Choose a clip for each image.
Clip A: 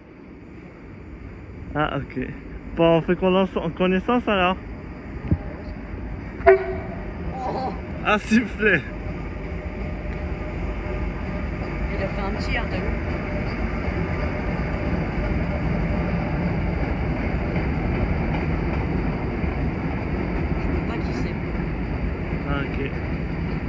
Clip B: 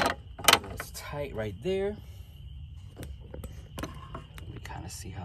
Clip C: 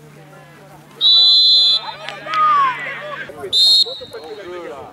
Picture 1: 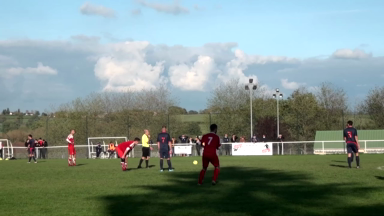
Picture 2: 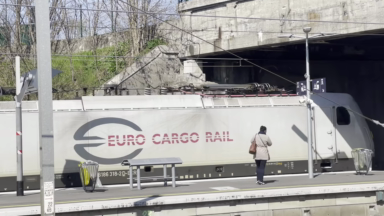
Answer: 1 C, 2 A